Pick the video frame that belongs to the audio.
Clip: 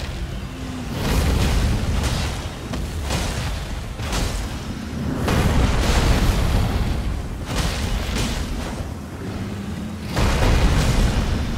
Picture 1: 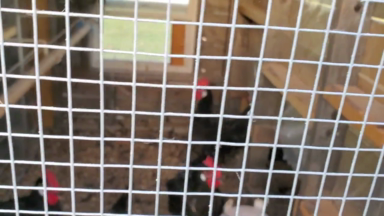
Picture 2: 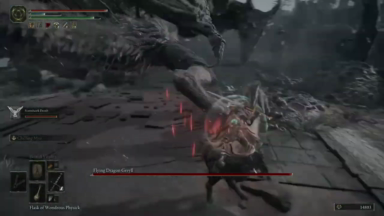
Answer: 2